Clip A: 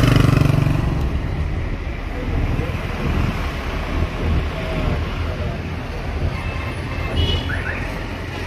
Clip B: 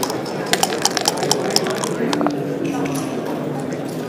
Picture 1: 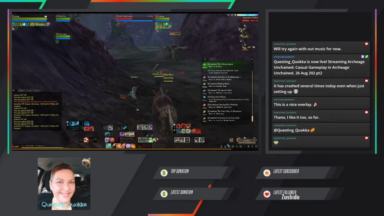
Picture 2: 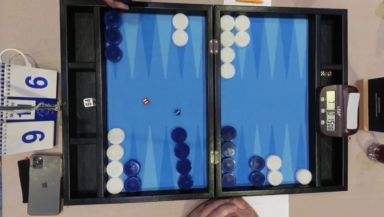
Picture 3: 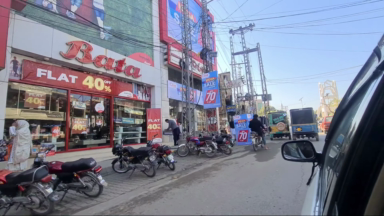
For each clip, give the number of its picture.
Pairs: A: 3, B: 2